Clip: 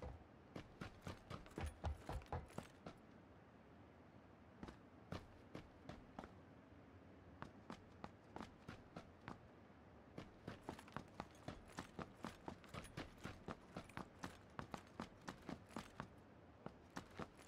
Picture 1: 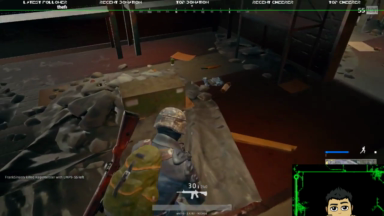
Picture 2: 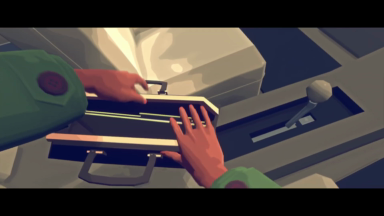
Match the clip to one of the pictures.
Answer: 1